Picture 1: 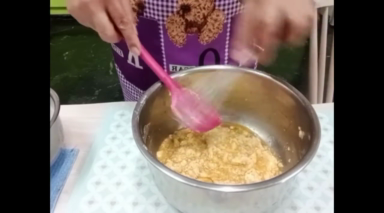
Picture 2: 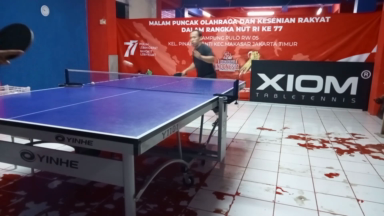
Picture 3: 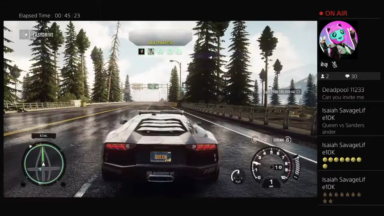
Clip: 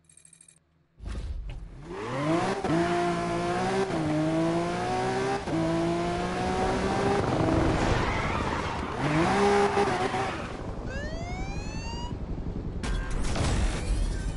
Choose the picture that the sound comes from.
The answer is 3